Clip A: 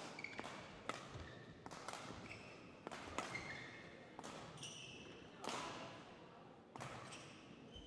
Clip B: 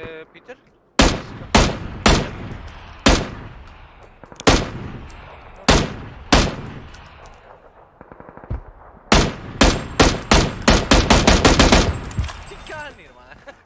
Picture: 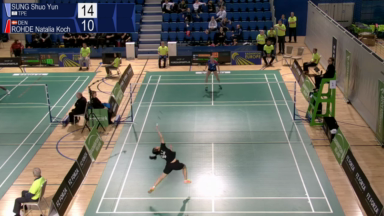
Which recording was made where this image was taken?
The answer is A